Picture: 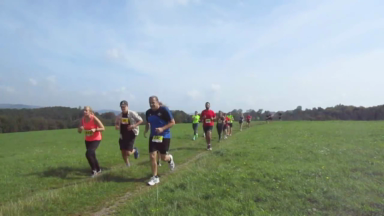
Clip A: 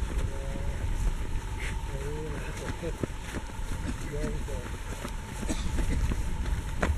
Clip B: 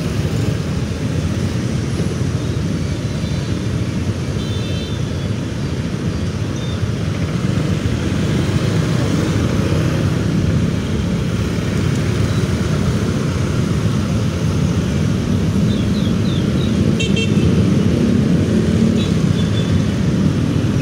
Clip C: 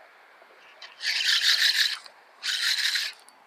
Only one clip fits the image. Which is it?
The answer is A